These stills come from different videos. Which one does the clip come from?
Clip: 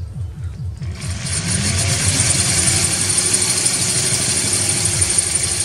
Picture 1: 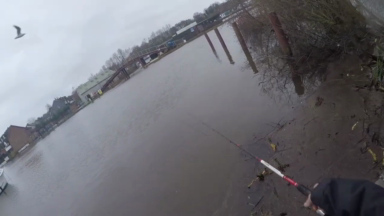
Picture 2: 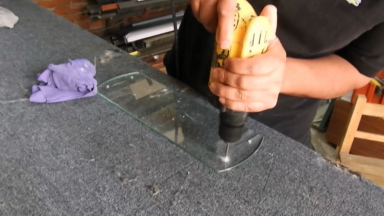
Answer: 2